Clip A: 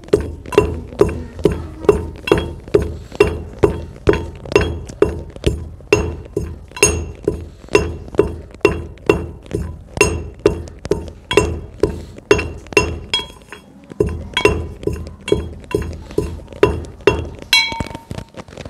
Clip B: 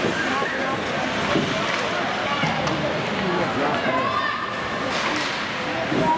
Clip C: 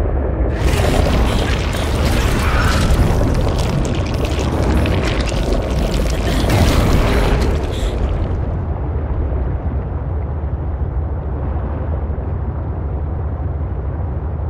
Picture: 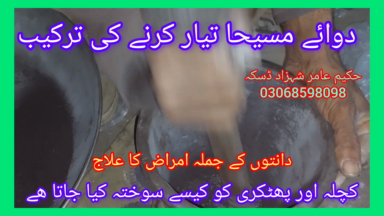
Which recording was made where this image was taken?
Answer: A